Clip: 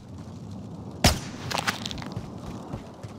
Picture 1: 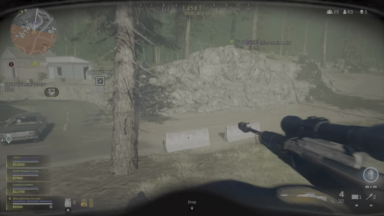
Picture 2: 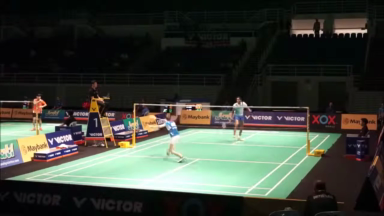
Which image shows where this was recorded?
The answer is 1